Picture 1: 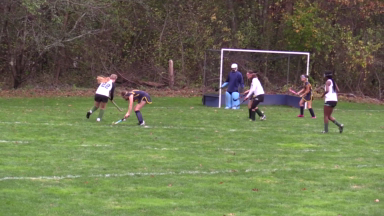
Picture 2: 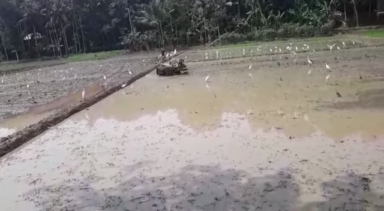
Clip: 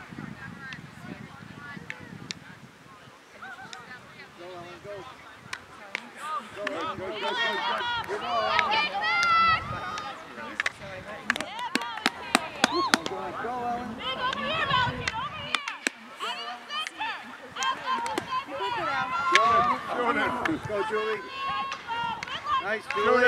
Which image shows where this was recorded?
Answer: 1